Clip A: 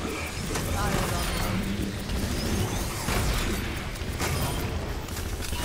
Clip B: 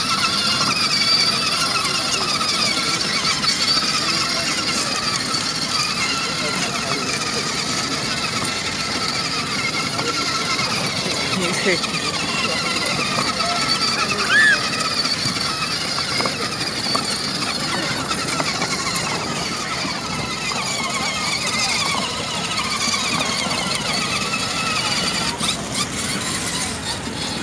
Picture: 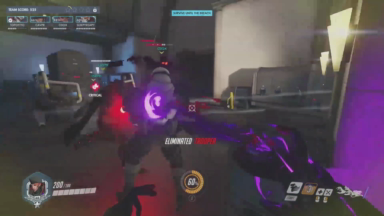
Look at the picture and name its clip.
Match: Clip A